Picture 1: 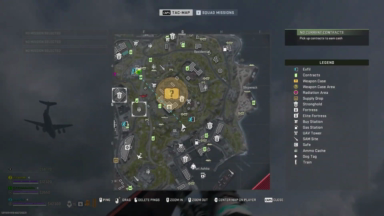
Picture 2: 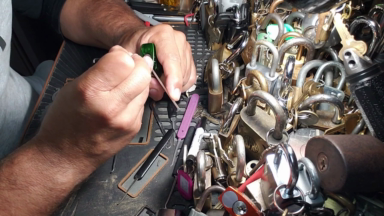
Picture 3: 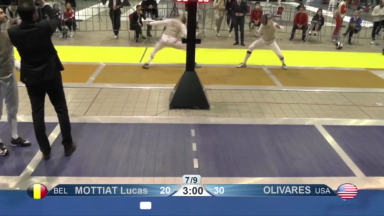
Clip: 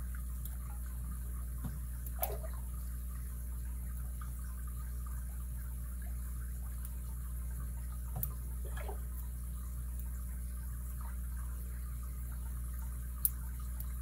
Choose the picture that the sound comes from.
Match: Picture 2